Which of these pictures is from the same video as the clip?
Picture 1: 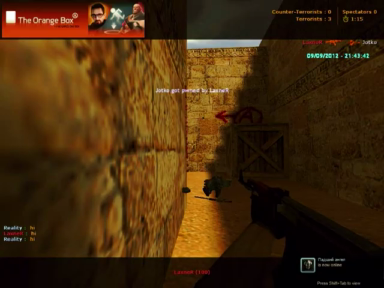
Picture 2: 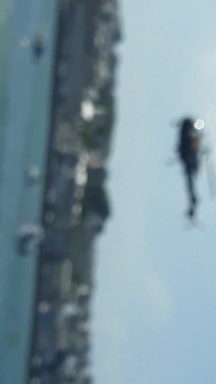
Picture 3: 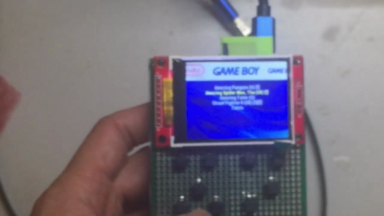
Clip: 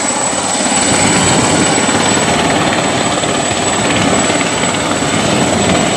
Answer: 2